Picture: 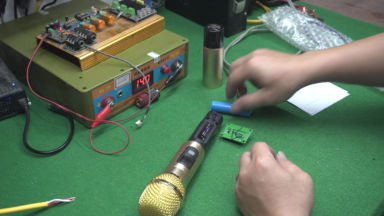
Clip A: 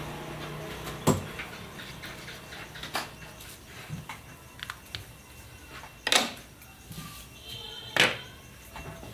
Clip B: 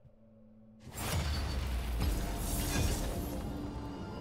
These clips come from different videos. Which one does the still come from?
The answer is A